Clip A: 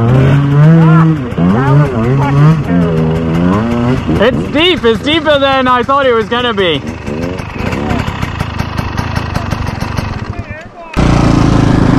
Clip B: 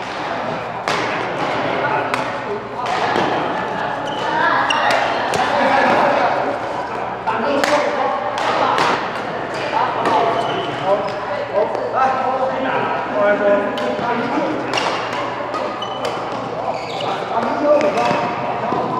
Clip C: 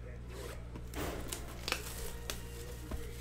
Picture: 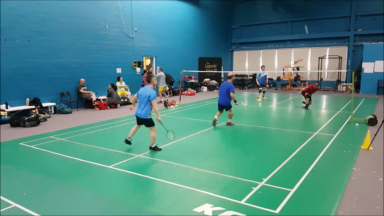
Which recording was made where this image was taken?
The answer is B